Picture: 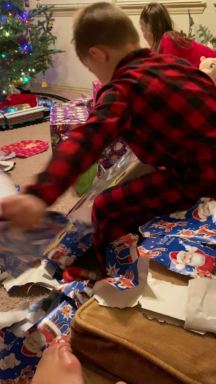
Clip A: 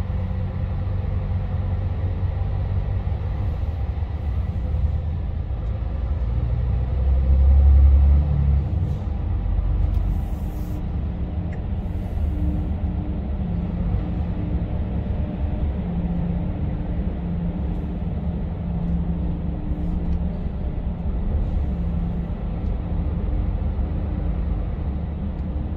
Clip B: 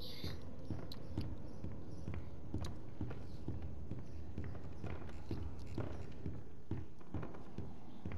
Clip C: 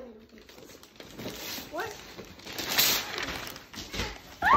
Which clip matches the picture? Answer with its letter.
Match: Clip C